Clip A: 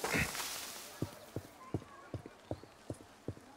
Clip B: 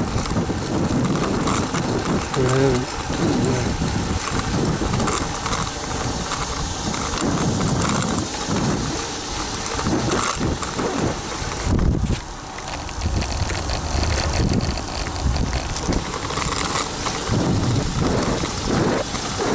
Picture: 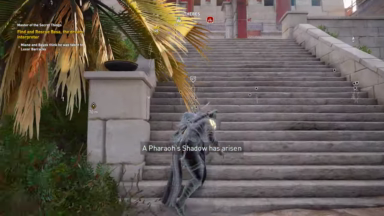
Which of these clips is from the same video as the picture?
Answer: A